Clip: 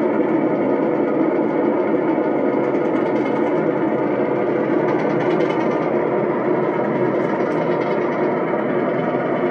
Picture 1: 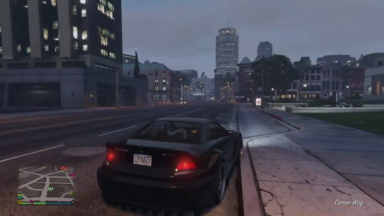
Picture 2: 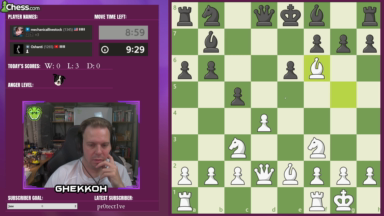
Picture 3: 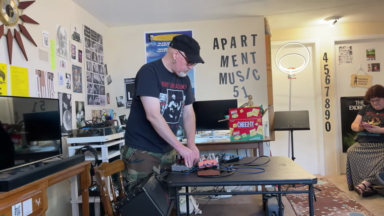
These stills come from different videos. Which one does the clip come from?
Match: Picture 3